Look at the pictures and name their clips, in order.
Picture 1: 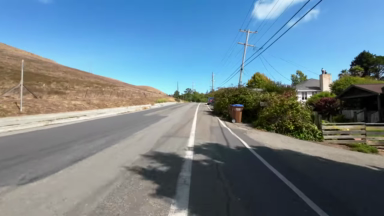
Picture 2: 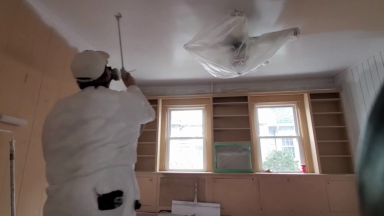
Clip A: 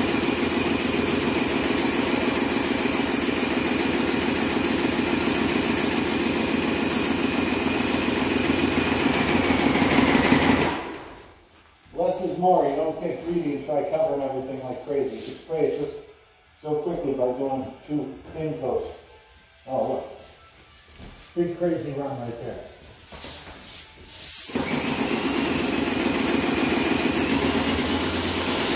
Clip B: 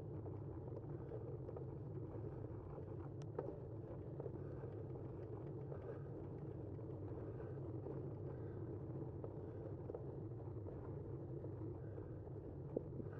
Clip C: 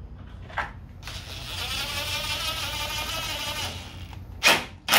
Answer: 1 B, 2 A